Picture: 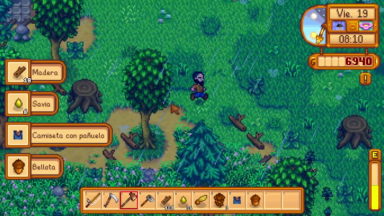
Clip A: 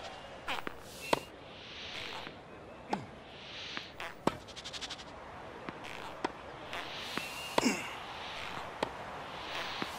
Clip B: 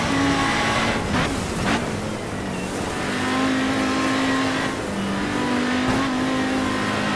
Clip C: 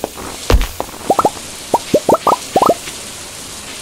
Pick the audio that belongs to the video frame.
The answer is C